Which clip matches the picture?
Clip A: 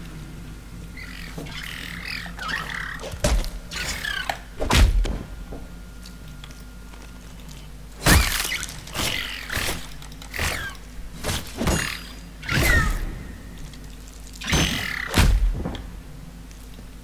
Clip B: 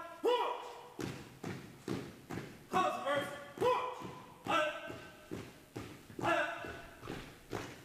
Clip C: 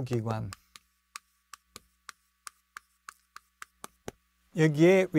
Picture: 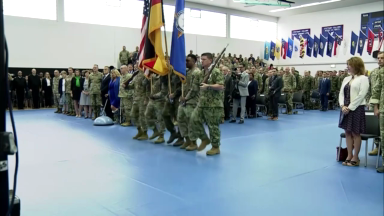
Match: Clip B